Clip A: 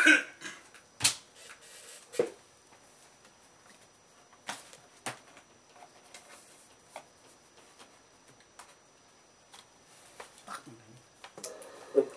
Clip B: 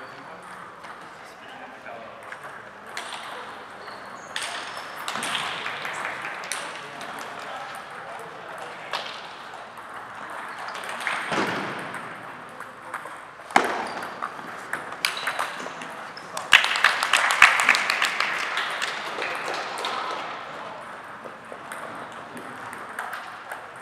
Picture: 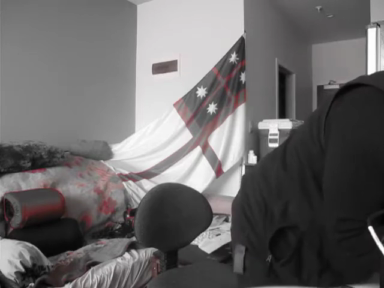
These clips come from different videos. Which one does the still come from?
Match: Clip A